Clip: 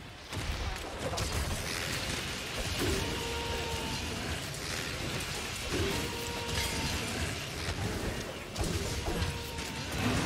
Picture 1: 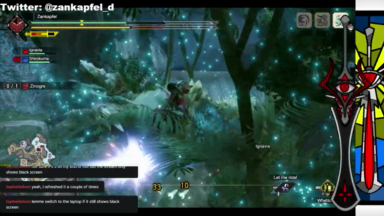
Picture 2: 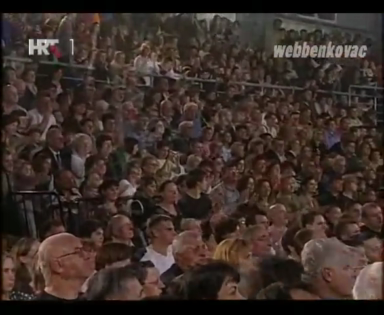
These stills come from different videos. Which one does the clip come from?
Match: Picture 1